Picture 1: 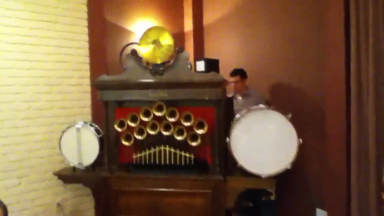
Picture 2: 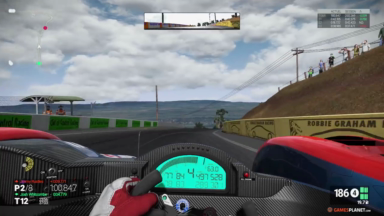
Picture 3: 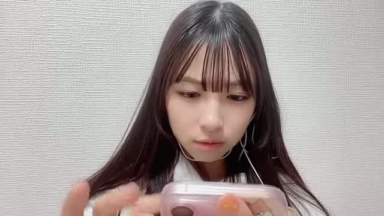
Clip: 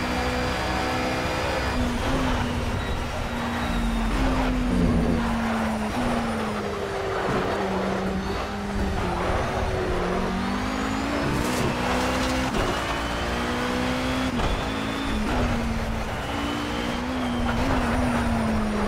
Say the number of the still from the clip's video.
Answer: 2